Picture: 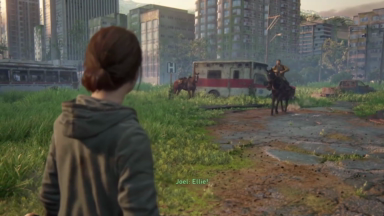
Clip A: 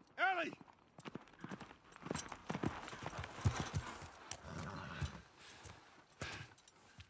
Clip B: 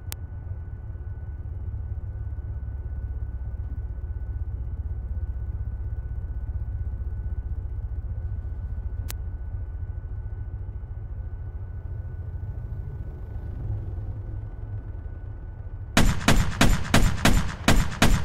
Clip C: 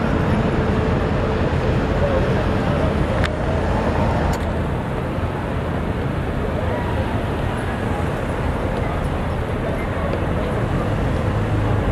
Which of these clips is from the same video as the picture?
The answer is A